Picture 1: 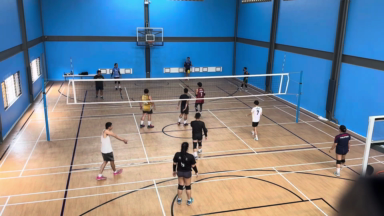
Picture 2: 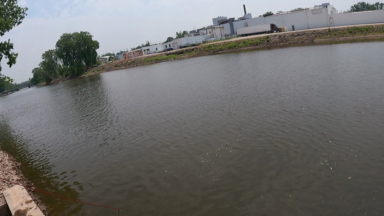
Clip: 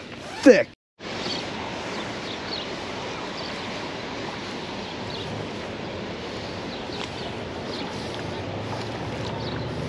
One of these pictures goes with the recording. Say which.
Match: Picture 2